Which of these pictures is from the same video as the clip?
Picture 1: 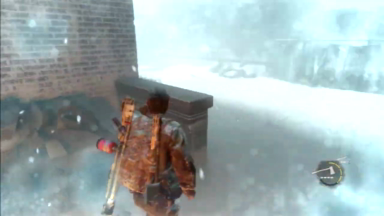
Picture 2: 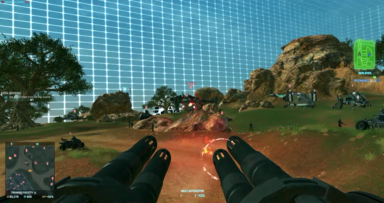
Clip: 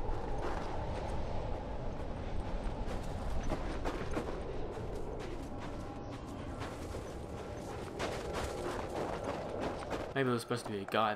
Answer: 1